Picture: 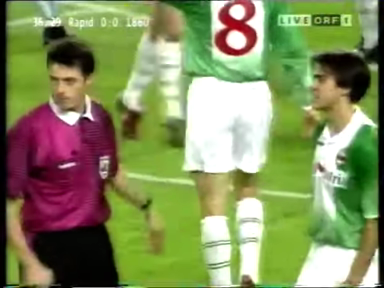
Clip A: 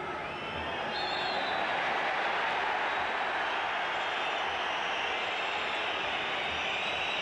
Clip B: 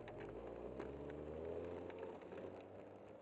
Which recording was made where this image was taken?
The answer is A